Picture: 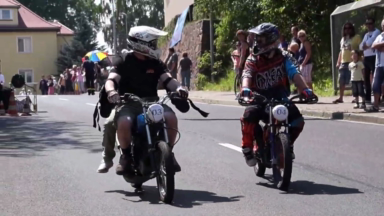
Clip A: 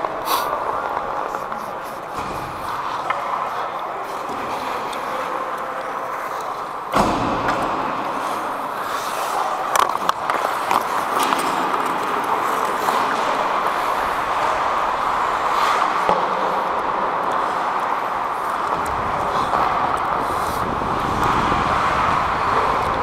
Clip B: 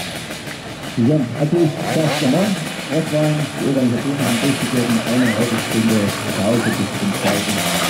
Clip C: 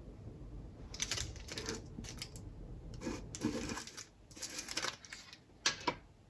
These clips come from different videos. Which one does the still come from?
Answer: B